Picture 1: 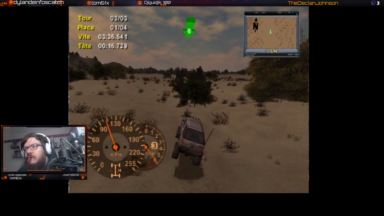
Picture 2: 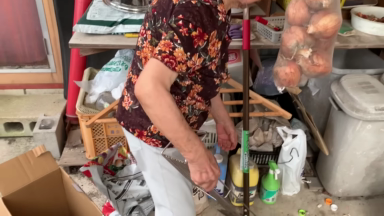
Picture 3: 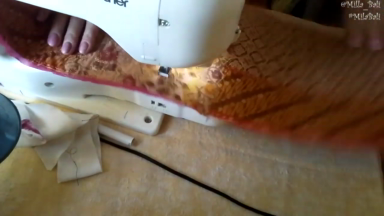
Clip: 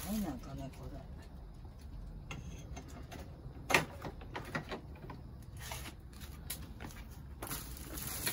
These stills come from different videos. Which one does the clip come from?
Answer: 2